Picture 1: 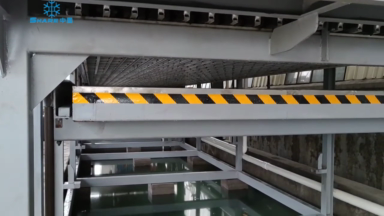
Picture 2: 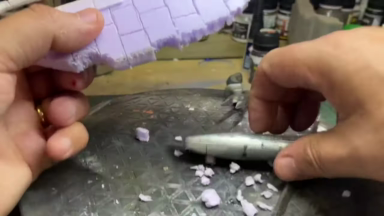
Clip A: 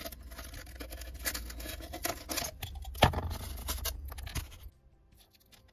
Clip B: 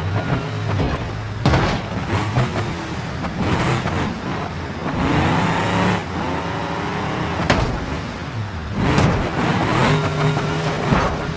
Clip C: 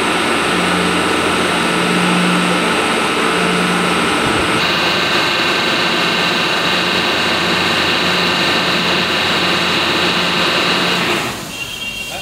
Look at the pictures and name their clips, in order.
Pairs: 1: C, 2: A